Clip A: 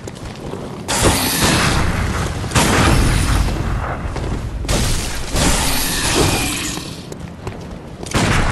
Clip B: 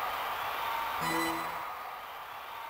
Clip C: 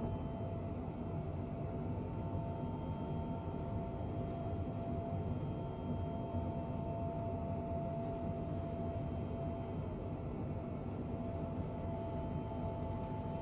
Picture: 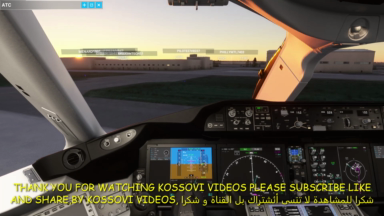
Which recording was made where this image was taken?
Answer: C